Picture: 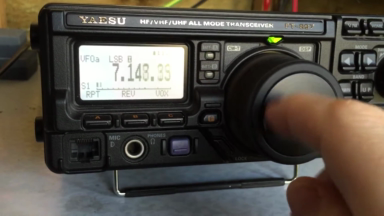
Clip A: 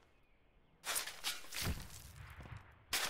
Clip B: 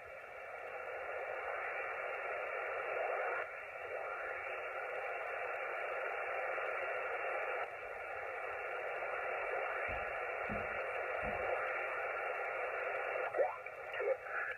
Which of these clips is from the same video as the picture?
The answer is B